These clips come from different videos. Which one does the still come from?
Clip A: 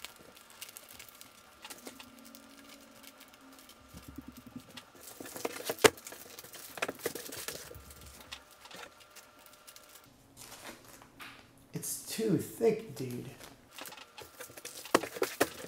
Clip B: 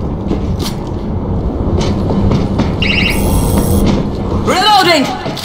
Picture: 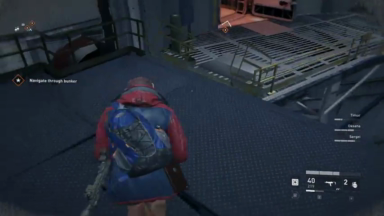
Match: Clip B